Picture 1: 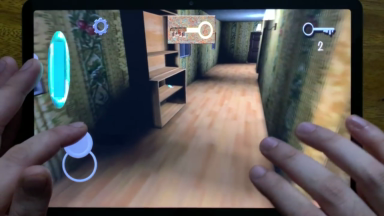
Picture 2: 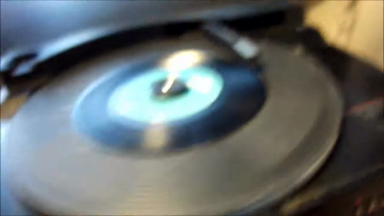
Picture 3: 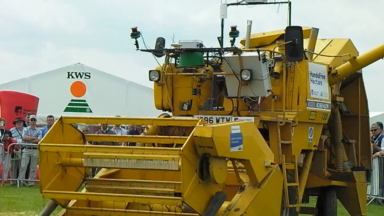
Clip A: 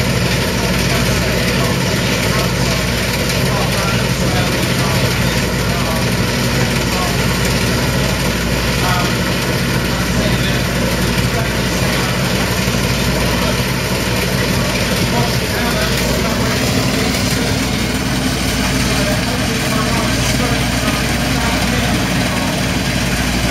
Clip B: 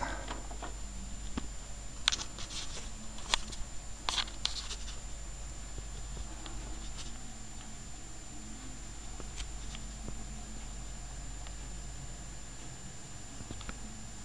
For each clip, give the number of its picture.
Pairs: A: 3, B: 2